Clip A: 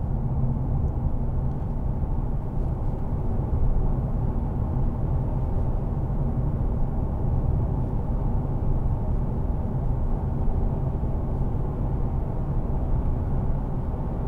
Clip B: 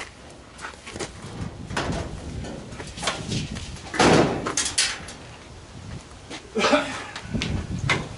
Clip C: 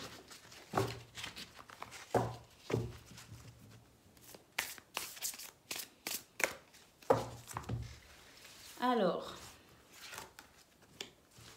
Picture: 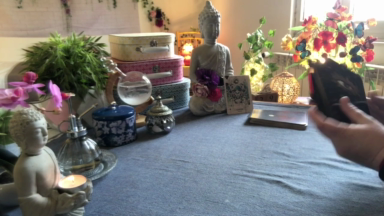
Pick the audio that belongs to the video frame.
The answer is C